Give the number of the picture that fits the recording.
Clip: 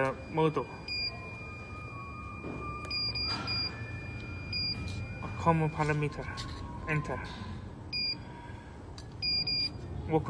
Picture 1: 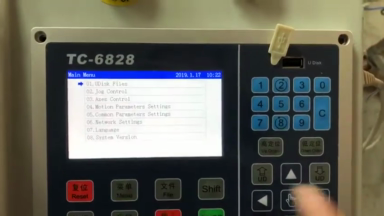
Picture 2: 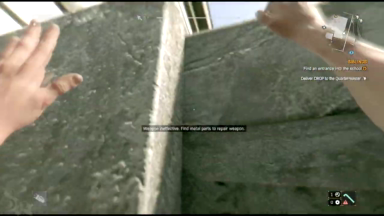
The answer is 1